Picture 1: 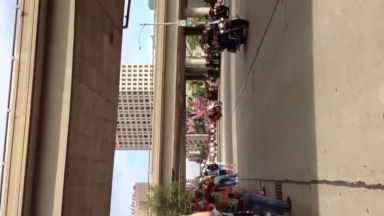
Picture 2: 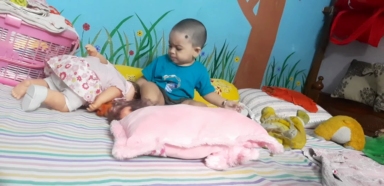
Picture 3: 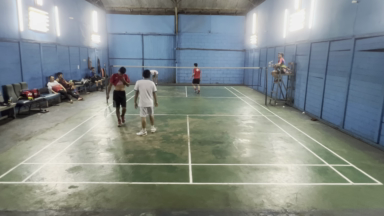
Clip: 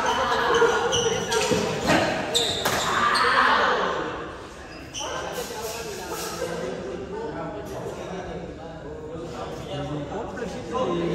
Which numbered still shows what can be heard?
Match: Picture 3